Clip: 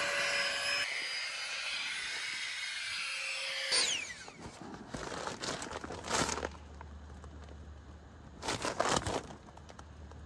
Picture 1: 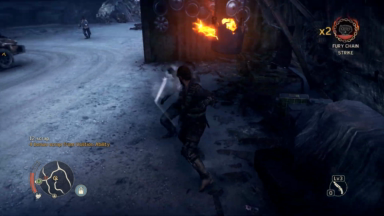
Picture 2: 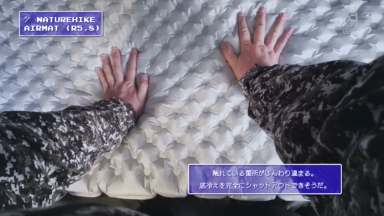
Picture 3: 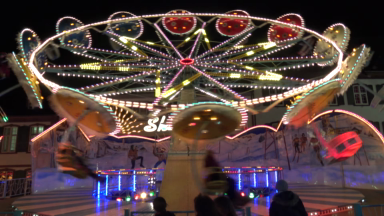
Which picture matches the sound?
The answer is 2